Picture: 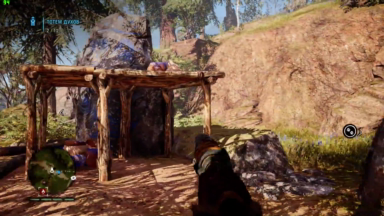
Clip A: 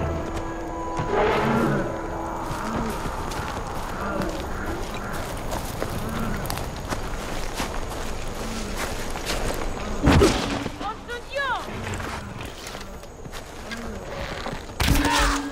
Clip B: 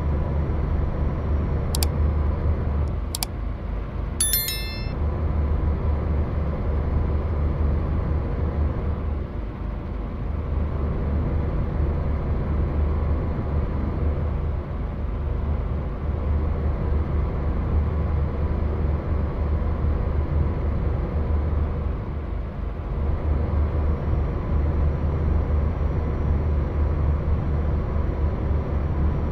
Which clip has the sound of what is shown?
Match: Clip A